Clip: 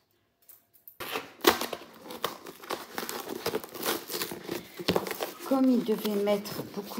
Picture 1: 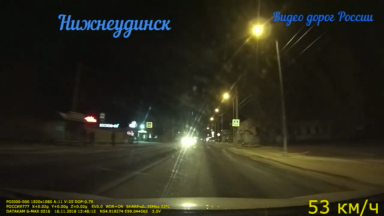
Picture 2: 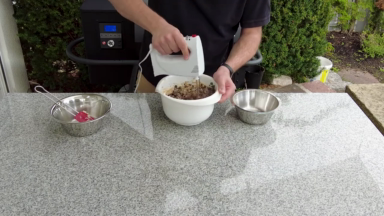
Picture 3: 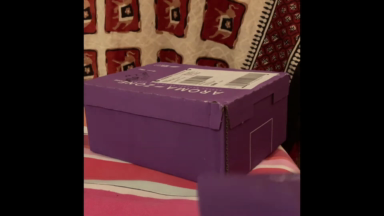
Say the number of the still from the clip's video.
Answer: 3